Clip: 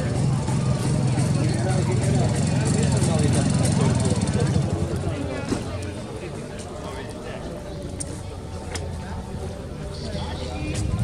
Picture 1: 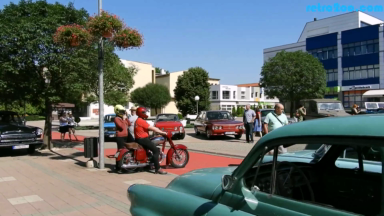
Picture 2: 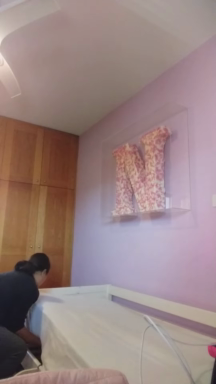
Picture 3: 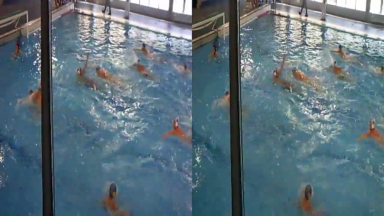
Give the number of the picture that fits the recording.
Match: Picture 1